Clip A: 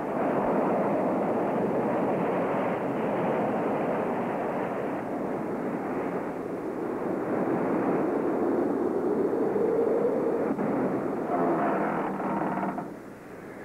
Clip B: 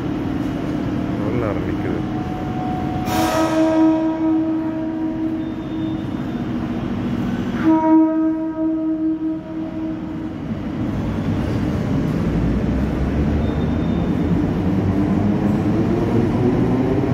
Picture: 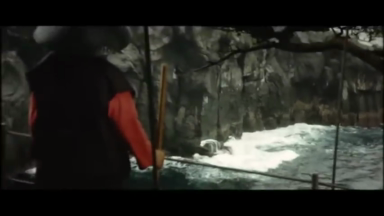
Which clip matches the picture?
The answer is A